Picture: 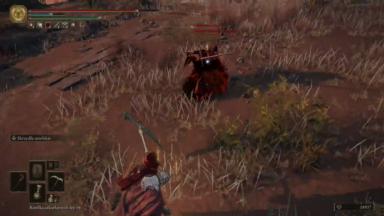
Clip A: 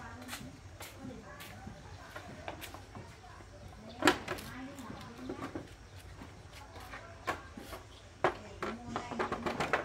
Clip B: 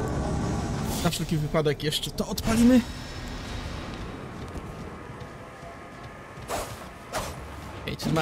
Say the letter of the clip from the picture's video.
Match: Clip B